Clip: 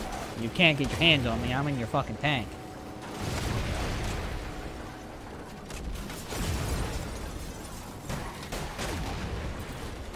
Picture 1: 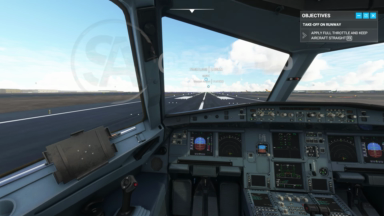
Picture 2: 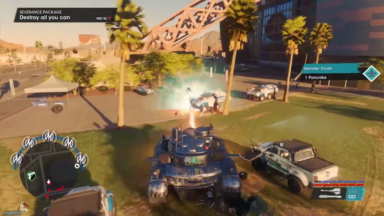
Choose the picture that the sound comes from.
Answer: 2